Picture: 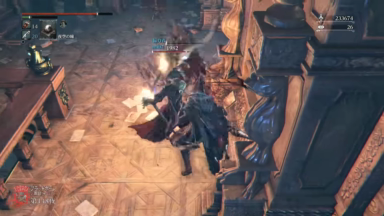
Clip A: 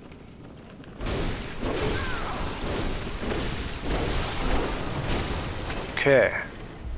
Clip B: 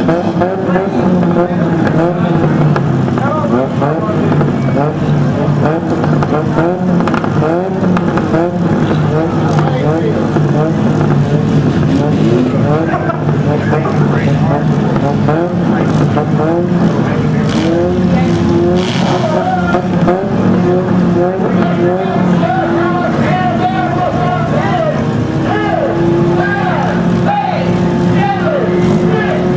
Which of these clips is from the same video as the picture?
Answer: A